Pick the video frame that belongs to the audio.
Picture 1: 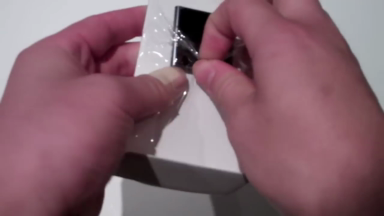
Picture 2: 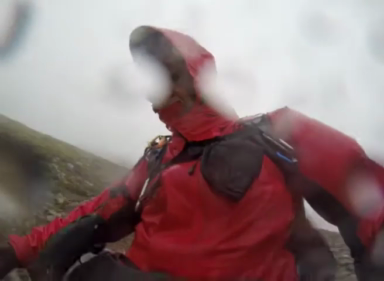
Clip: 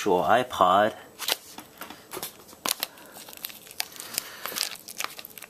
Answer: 1